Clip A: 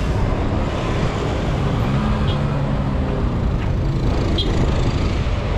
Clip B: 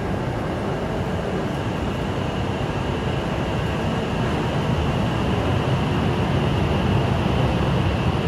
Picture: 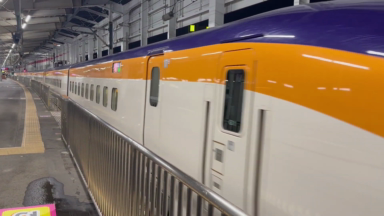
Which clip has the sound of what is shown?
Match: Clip B